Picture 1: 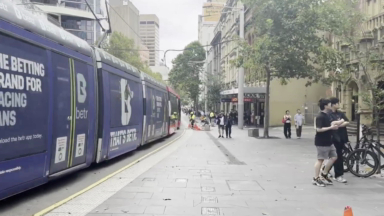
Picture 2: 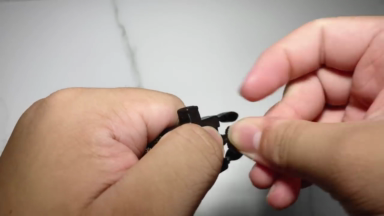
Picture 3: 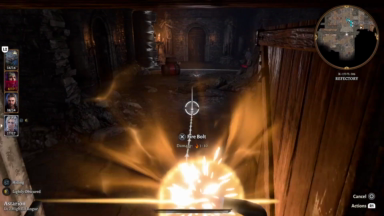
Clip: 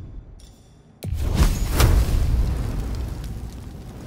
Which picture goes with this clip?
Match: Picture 3